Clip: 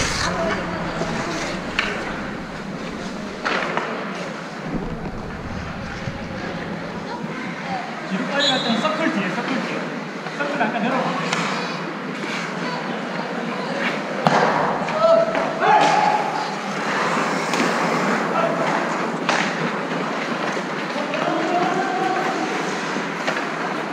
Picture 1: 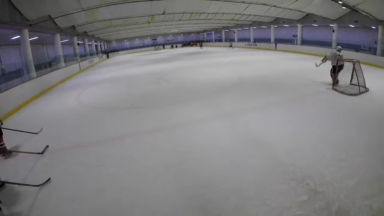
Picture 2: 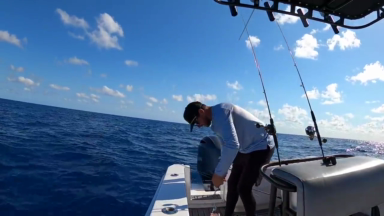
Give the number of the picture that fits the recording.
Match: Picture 1